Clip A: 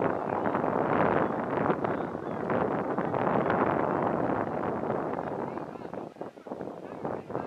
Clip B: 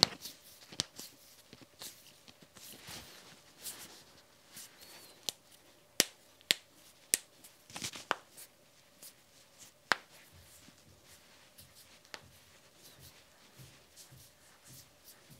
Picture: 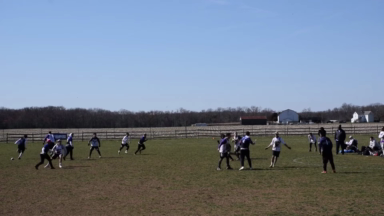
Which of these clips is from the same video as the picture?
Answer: A